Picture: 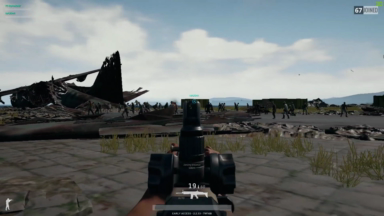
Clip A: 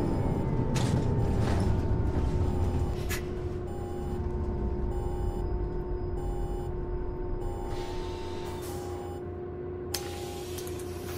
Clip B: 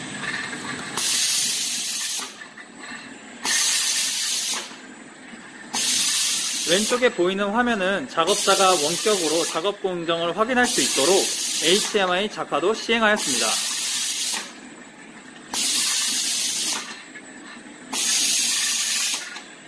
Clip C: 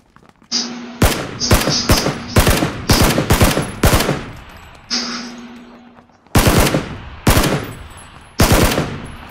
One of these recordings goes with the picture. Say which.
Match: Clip C